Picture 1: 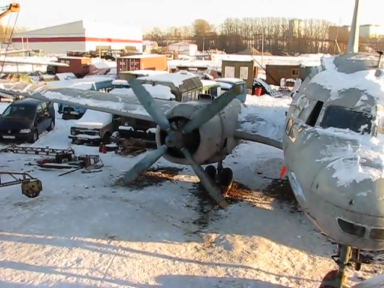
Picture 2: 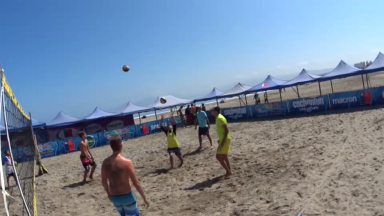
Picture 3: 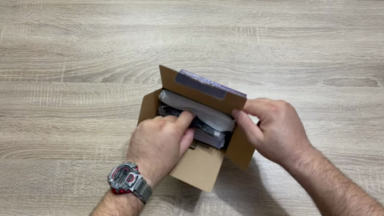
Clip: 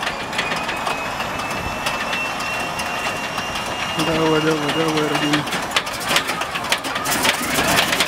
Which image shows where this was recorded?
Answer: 1